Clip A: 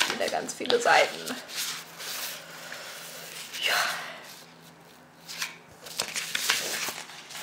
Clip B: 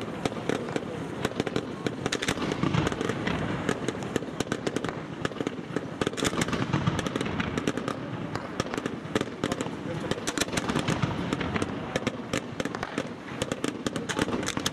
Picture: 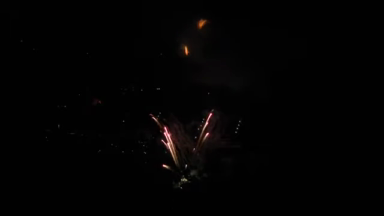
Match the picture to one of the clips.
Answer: B